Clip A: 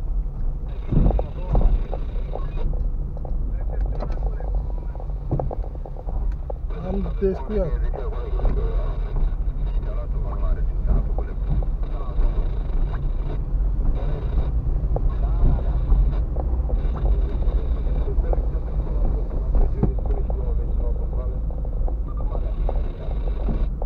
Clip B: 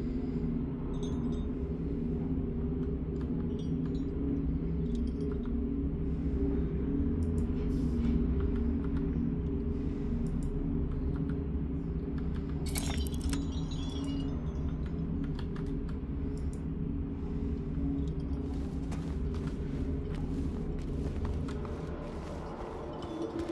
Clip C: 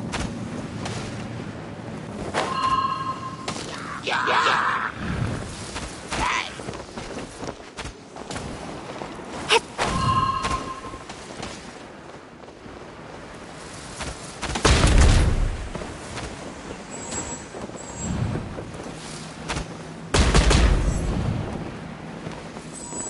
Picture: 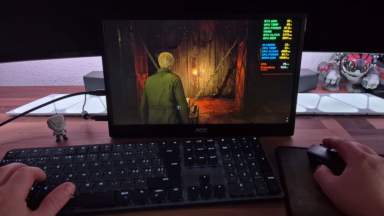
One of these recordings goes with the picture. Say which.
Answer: B